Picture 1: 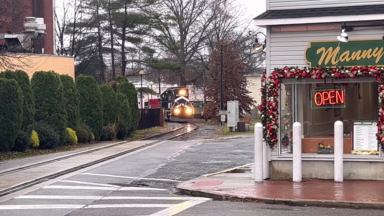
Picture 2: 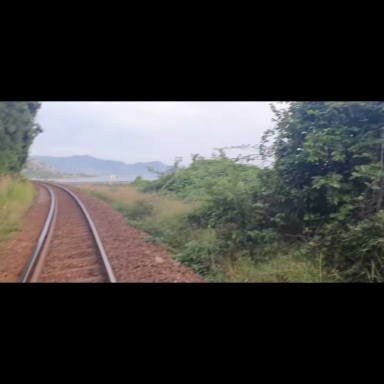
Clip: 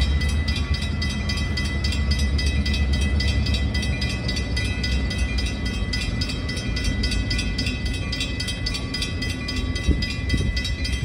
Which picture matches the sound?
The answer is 1